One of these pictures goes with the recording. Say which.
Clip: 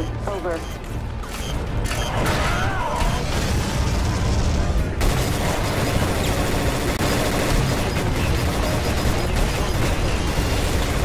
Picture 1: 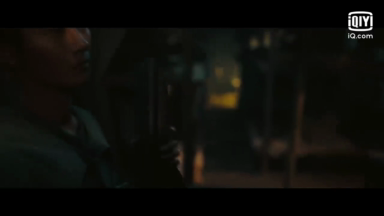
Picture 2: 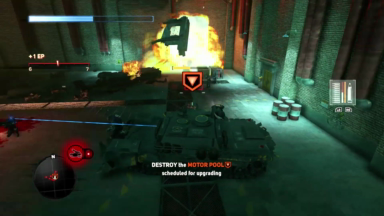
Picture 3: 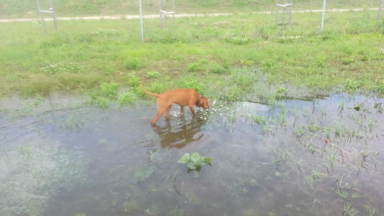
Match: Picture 2